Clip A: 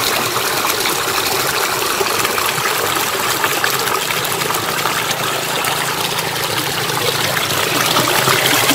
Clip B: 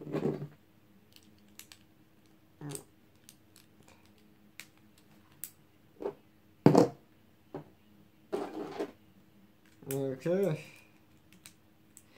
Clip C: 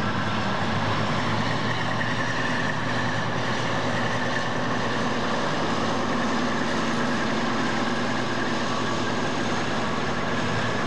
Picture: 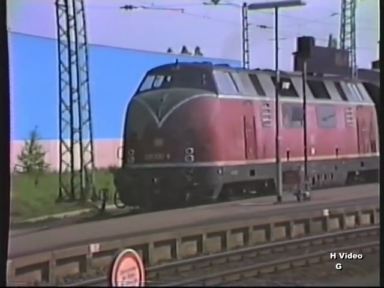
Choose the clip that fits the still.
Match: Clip C